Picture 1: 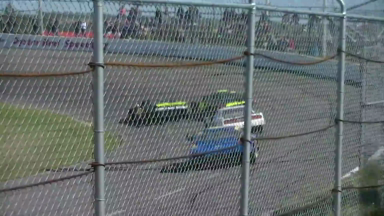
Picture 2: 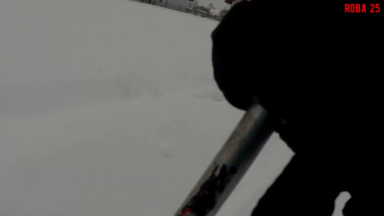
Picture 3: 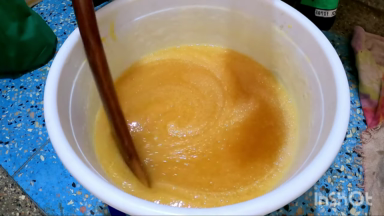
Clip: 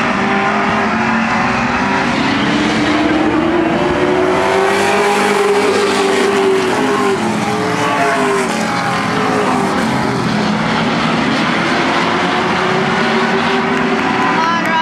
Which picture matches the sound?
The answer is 1